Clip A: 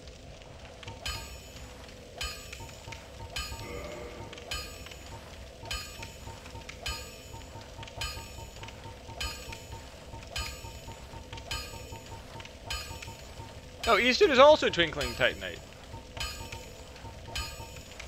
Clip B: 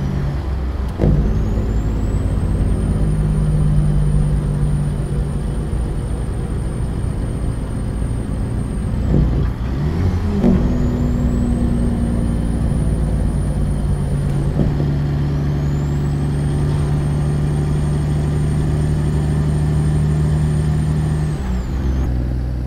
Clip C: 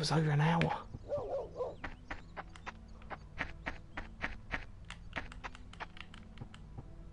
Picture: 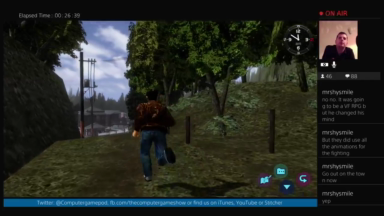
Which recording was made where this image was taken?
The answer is C